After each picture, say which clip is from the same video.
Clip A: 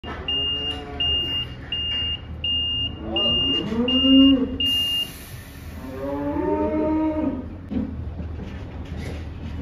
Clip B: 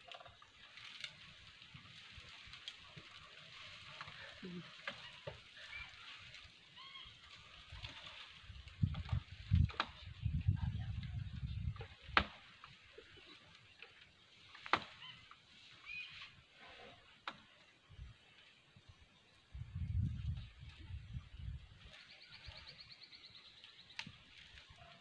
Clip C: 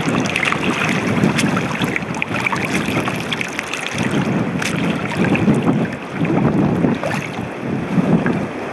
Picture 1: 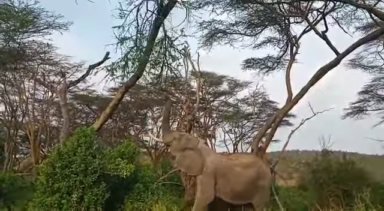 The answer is B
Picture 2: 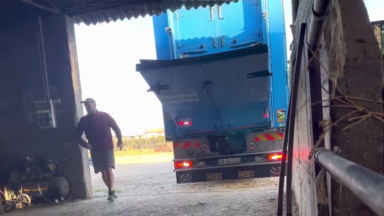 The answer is A